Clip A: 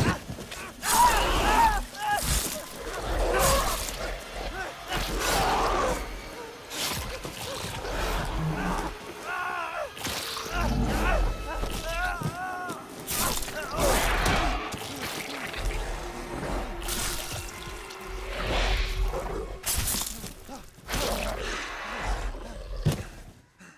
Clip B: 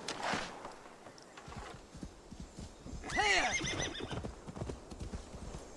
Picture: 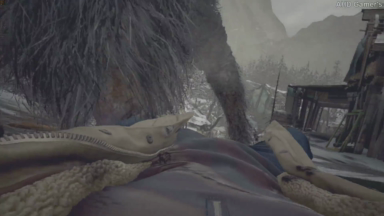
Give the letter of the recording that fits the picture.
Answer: A